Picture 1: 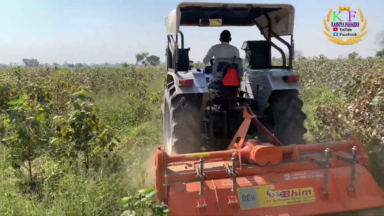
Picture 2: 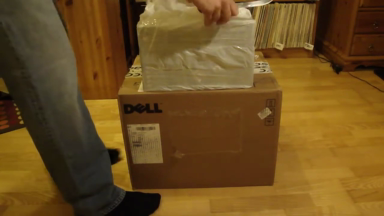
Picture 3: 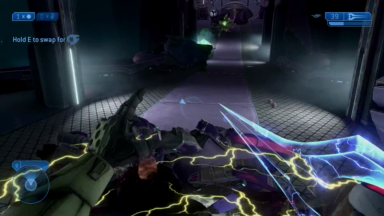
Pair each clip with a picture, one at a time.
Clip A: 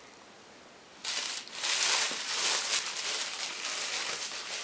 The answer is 2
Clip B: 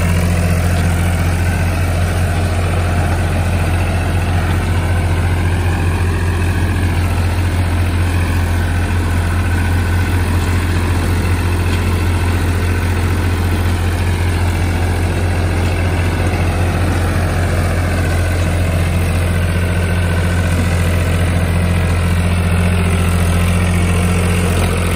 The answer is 1